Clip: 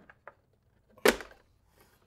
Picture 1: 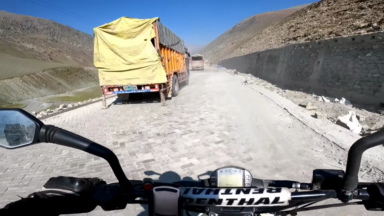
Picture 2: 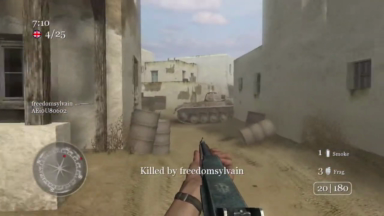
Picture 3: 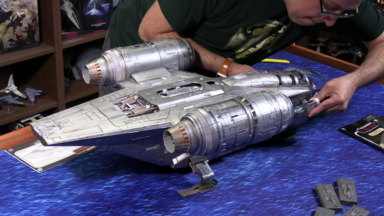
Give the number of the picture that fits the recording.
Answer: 3